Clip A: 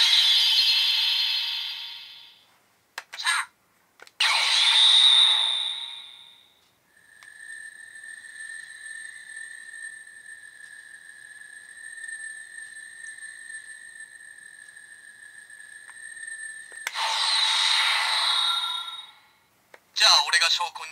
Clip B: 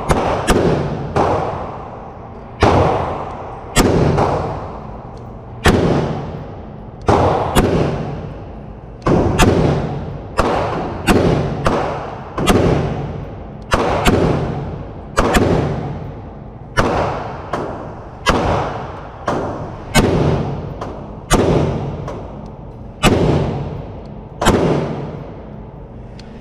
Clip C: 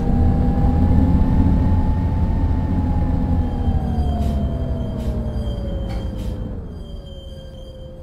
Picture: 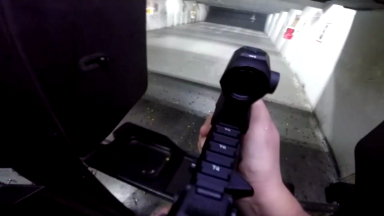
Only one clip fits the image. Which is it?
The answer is B